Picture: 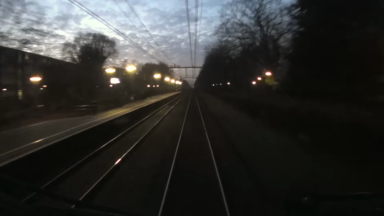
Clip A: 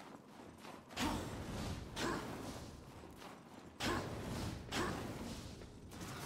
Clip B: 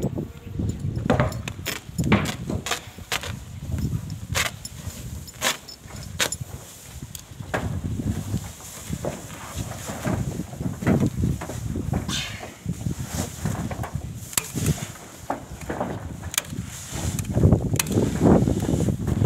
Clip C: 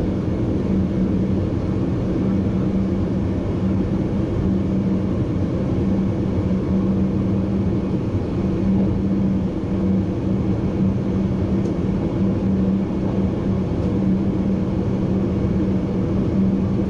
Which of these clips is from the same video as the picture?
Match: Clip C